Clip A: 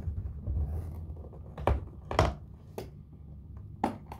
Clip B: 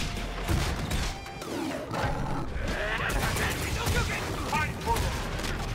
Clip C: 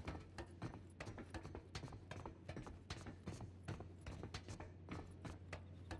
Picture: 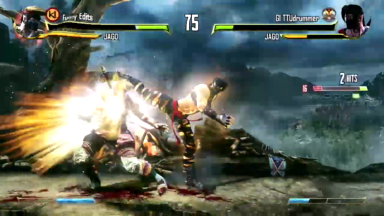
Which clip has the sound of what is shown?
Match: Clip B